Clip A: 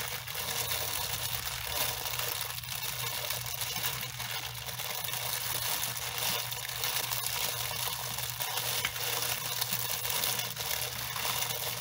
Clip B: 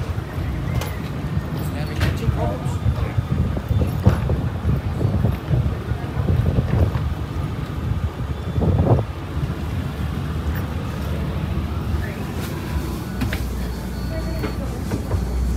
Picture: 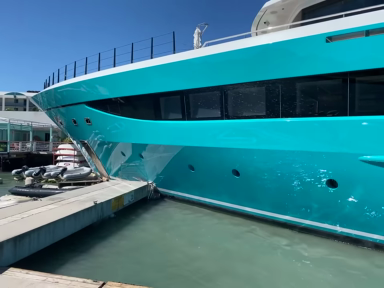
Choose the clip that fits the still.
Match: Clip B